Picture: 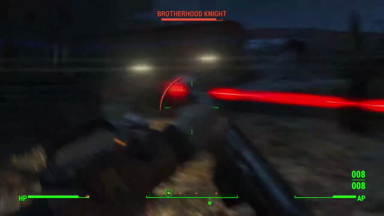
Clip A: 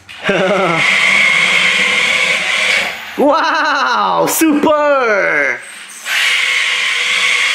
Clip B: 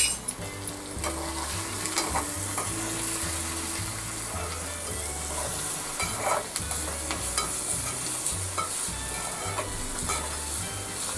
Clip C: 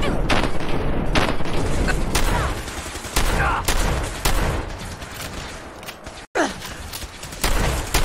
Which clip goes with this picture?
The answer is C